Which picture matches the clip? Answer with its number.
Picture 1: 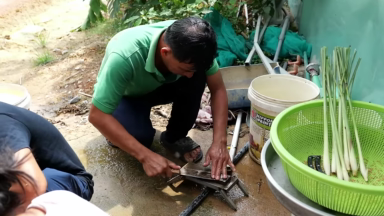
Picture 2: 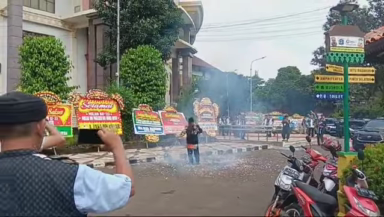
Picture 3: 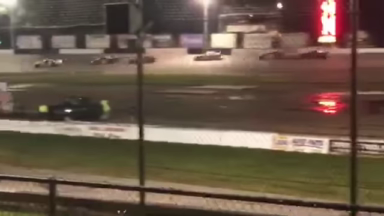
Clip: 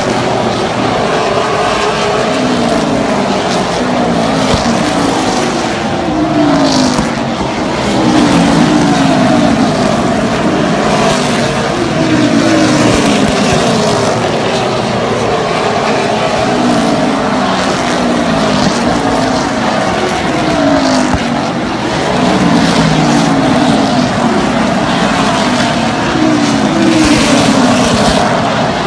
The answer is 3